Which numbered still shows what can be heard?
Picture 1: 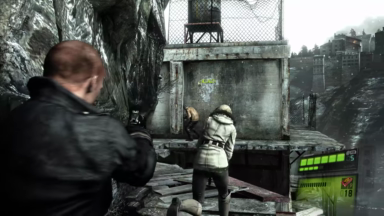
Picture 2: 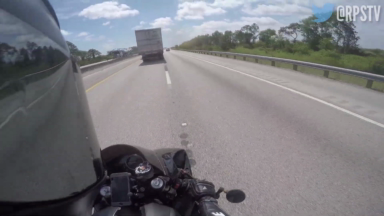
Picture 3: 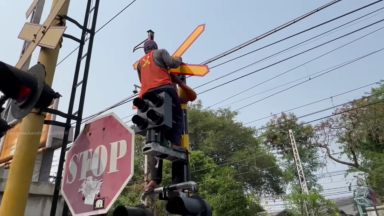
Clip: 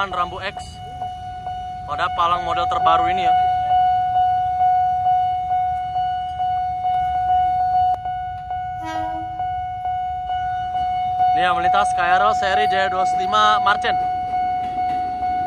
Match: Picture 3